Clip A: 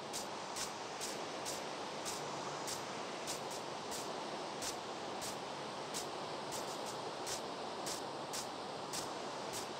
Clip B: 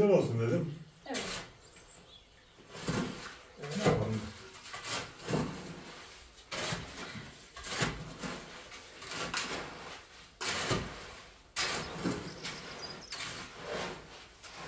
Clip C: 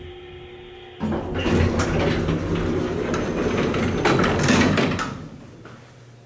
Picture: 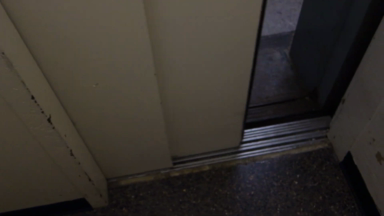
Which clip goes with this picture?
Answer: C